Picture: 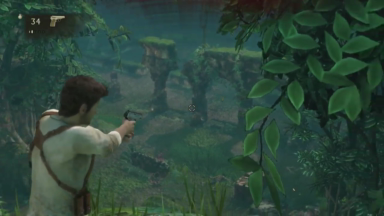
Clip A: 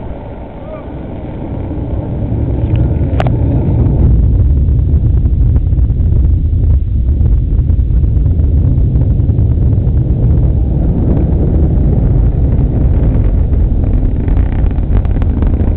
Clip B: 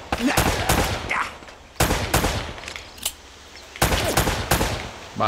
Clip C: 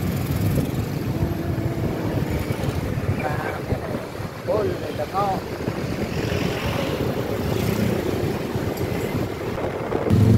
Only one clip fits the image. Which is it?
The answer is B